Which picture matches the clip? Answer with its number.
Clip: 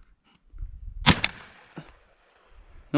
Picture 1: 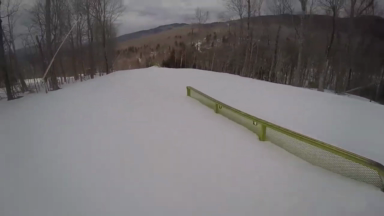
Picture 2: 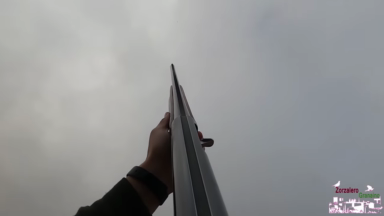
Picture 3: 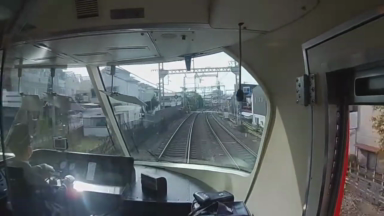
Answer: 2